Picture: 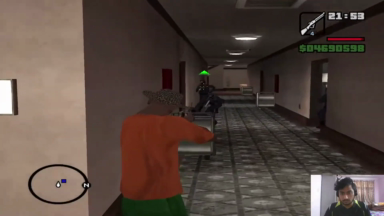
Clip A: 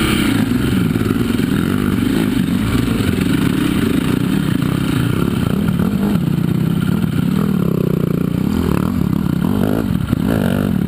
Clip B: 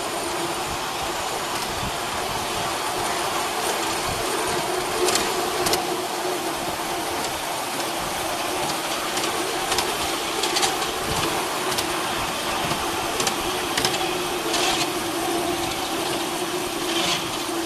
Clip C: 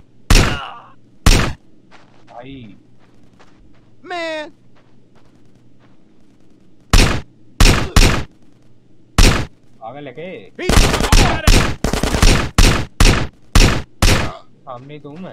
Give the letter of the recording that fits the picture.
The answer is C